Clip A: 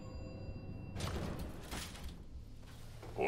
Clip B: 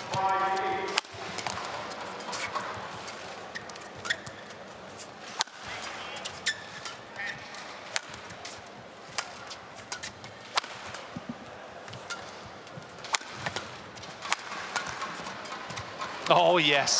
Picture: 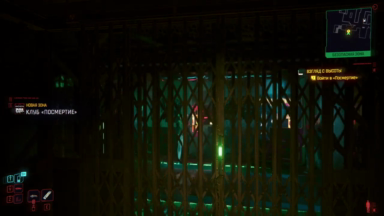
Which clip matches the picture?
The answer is A